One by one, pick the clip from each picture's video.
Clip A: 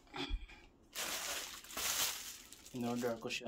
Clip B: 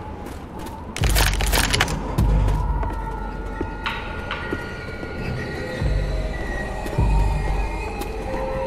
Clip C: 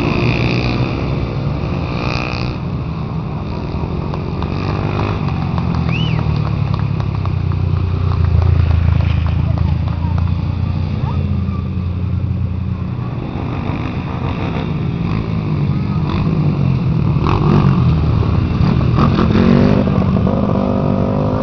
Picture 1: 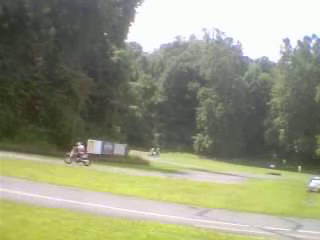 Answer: C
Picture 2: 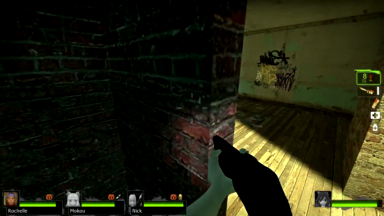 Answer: B